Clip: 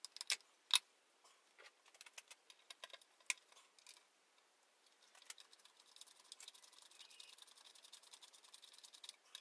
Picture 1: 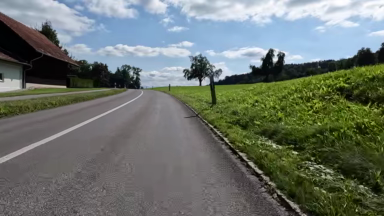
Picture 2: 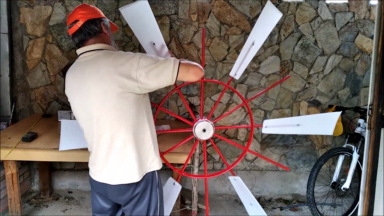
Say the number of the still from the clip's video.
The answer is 2